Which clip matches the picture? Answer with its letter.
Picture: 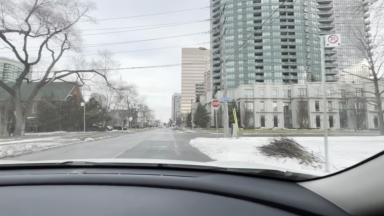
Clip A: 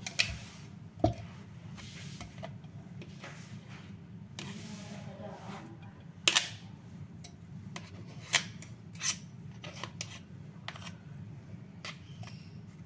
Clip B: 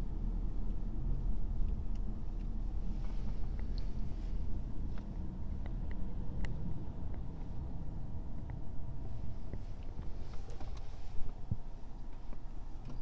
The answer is B